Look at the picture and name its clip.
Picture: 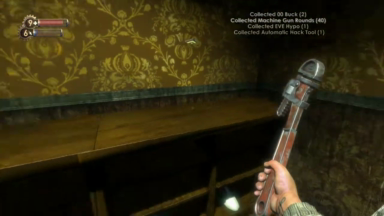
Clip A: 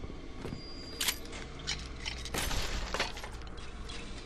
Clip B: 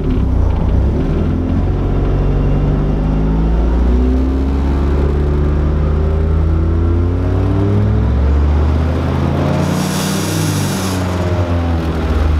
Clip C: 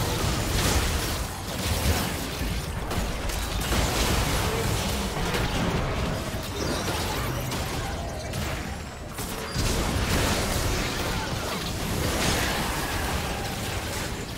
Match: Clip A